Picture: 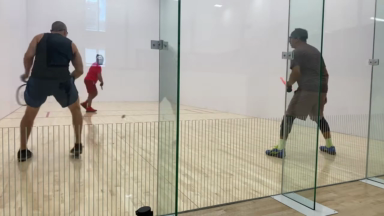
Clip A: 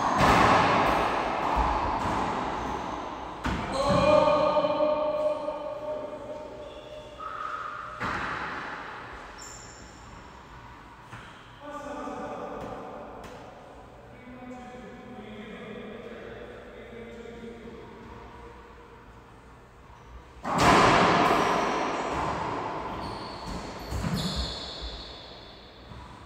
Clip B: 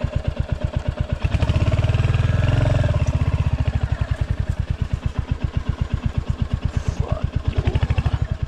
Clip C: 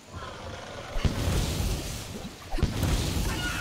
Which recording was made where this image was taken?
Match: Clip A